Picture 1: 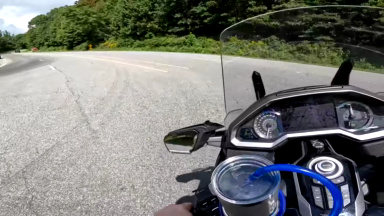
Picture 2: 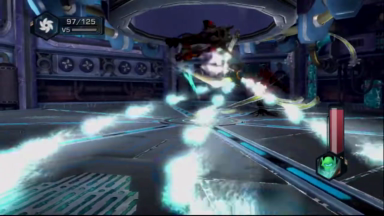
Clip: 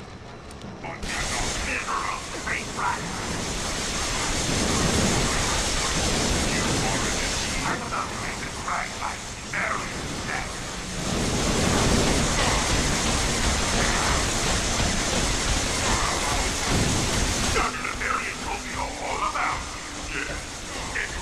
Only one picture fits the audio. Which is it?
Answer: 2